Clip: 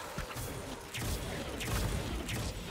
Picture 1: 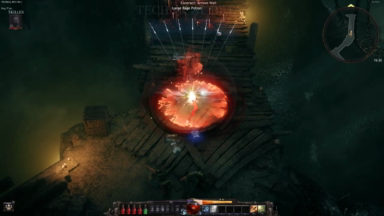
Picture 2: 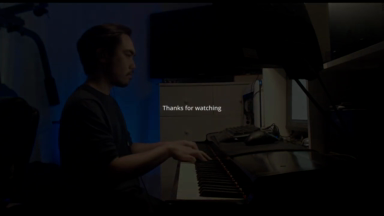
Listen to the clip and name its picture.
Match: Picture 1